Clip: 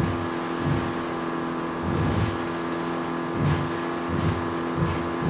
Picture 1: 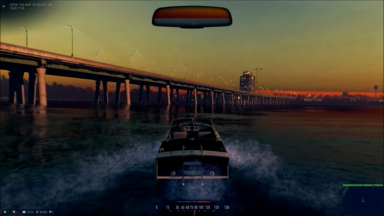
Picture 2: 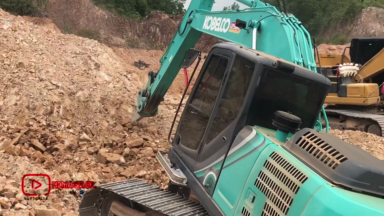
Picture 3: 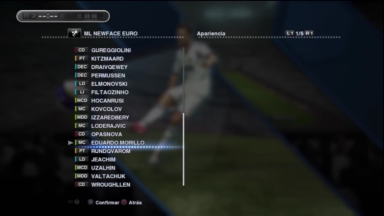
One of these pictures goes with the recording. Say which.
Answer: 1